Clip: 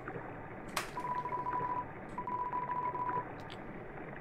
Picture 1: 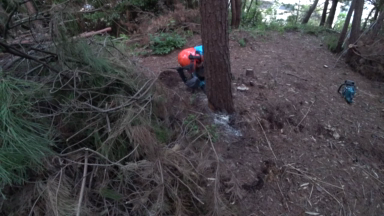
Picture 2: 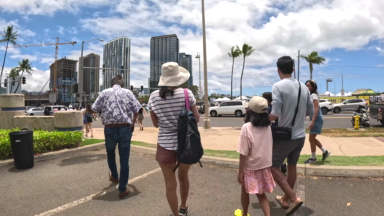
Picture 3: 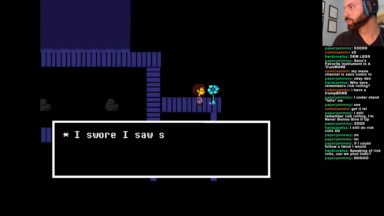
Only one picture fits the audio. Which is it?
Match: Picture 3